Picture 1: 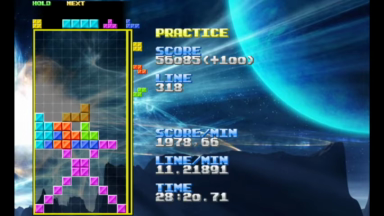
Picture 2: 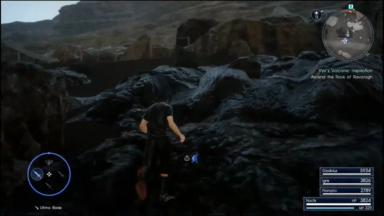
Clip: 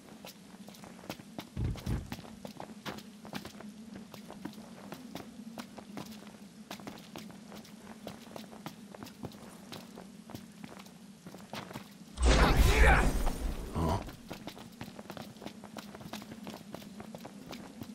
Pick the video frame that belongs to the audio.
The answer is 2